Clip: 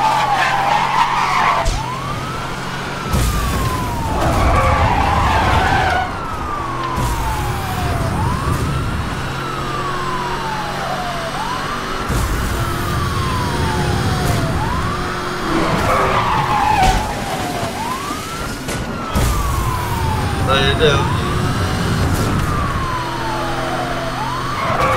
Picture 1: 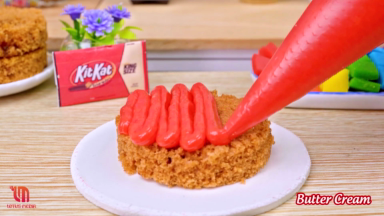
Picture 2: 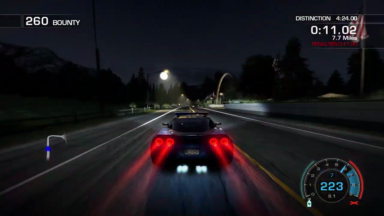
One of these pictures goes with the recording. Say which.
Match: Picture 2